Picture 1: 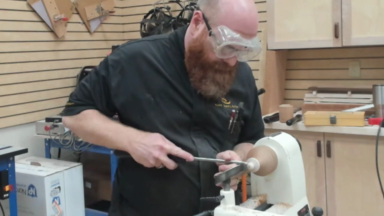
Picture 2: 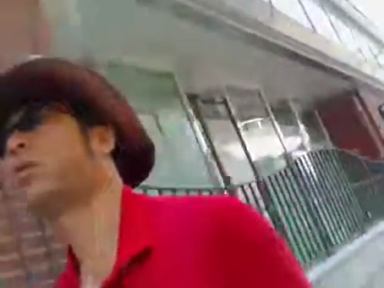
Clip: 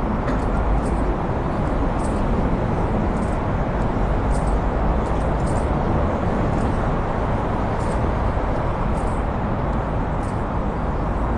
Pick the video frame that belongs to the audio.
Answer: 2